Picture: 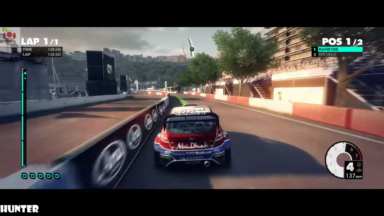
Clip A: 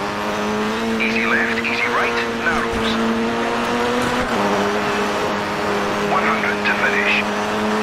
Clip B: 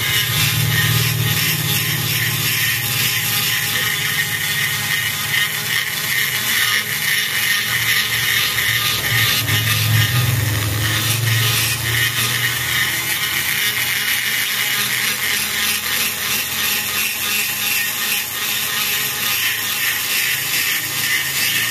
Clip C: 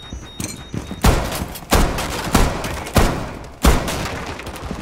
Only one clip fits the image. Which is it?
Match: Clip A